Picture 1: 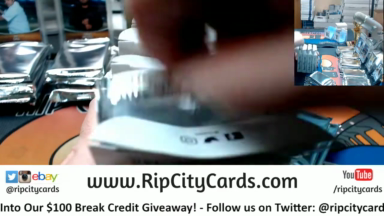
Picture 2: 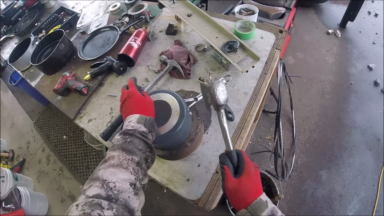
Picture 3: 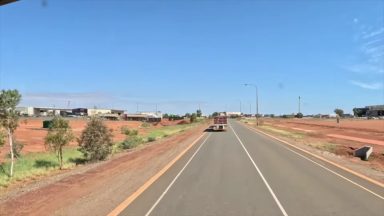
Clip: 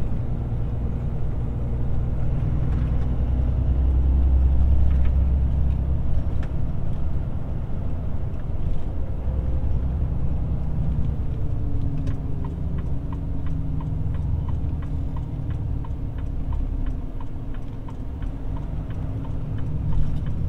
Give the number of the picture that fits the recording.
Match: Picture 3